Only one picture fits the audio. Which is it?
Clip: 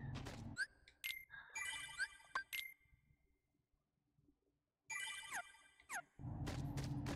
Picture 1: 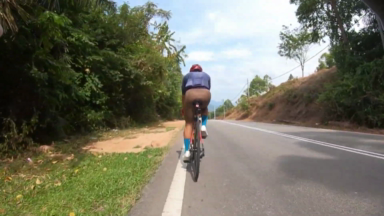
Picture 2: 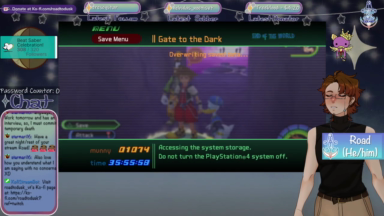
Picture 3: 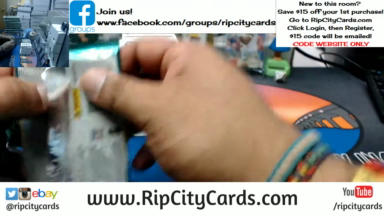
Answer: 2